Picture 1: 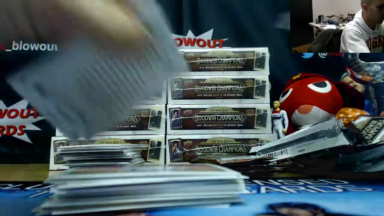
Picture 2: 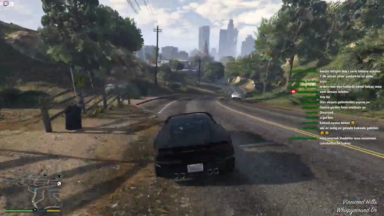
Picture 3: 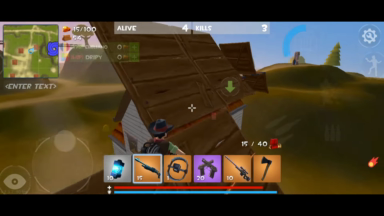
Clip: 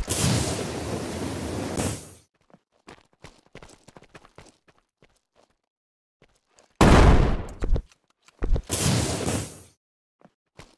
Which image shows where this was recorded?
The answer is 3